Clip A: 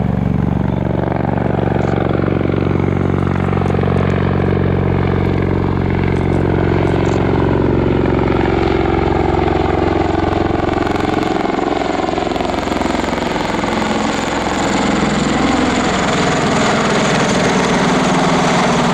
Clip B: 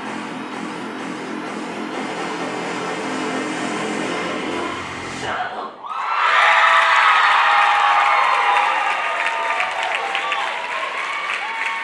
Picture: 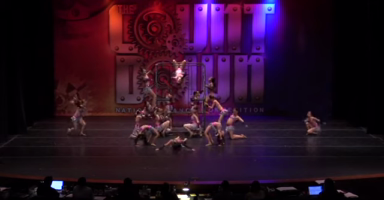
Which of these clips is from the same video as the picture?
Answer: B